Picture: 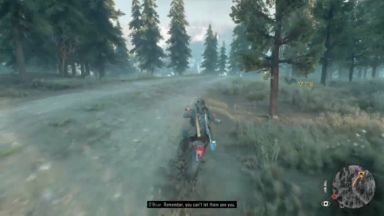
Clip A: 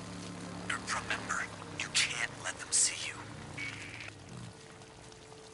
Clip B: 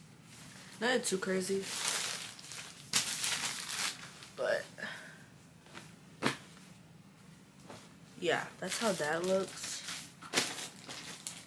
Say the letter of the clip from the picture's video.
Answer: A